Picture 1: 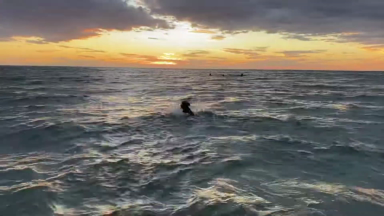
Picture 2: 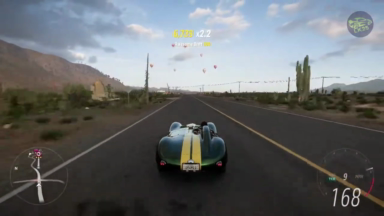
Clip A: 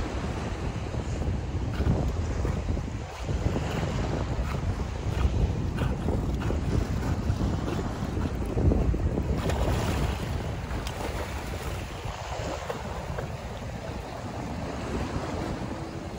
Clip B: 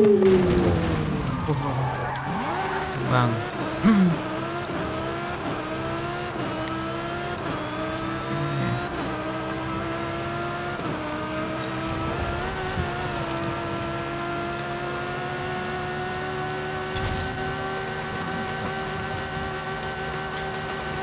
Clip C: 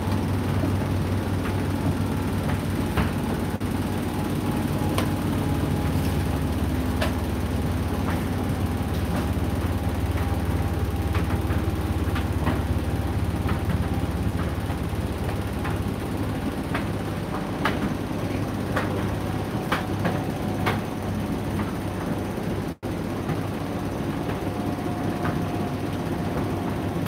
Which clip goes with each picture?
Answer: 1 A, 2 B